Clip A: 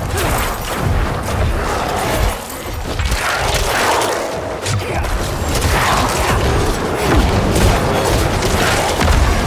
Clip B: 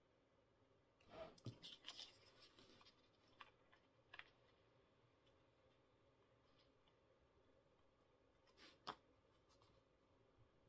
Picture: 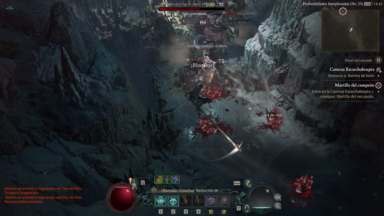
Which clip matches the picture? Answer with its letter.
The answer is A